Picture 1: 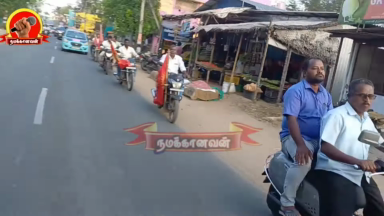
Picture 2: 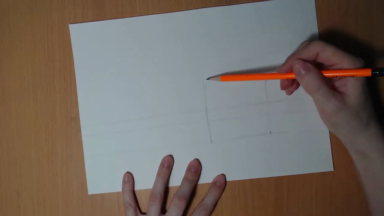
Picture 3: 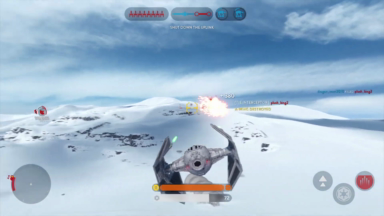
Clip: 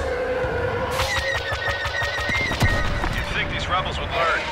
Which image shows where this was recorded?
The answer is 3